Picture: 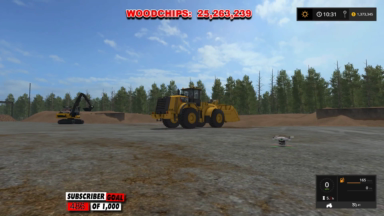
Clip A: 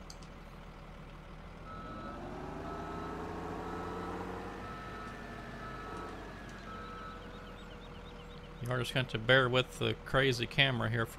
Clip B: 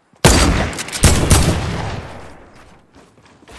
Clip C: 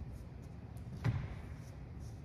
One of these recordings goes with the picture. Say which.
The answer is A